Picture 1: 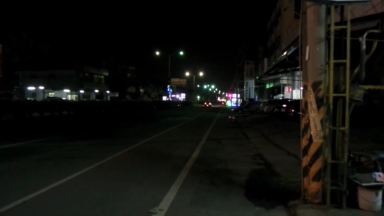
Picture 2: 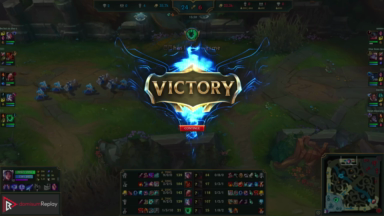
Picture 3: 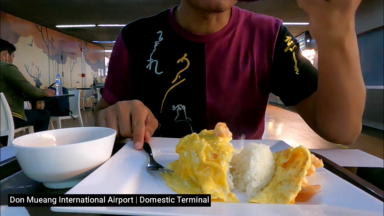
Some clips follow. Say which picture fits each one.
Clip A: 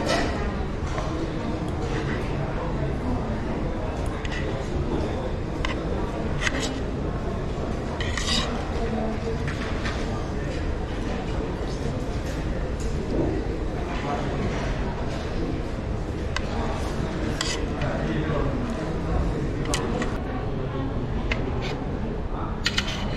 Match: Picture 3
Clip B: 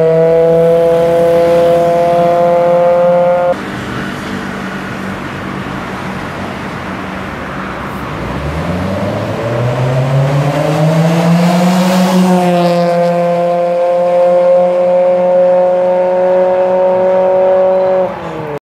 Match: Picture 1